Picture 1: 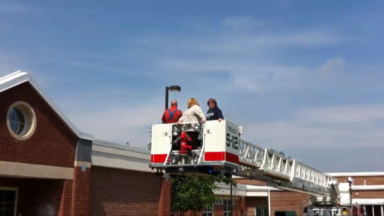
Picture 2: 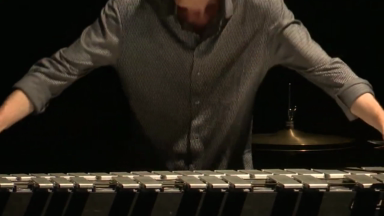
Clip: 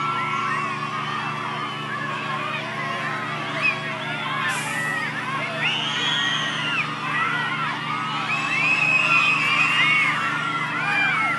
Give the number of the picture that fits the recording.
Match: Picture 1